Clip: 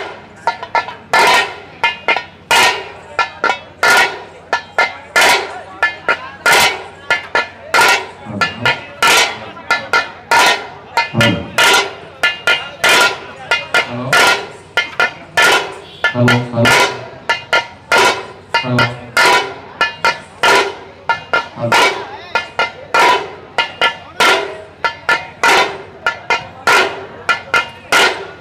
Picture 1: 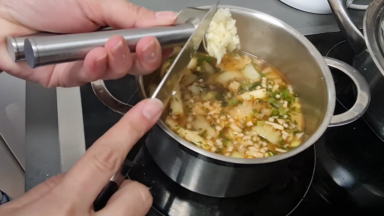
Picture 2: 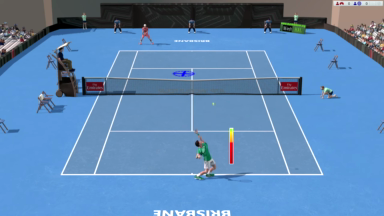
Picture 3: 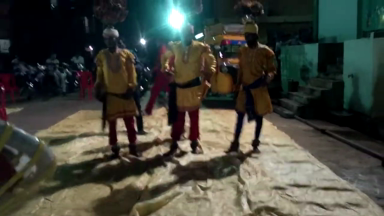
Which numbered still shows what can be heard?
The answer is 3